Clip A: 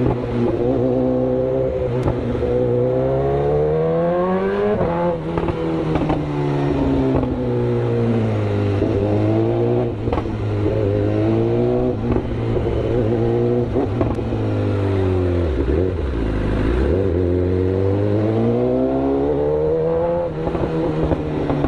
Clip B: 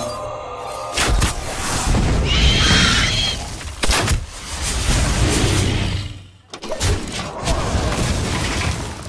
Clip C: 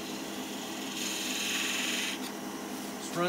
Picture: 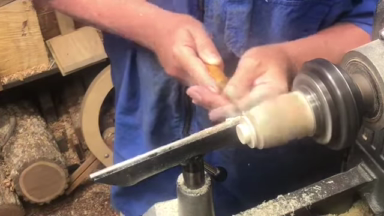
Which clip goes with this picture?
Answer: C